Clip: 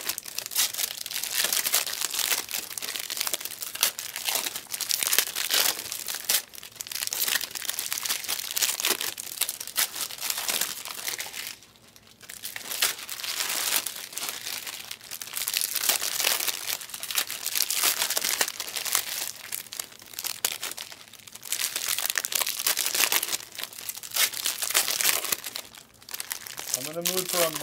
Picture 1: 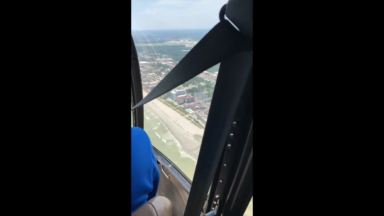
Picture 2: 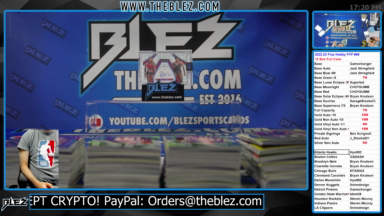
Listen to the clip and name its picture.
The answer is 2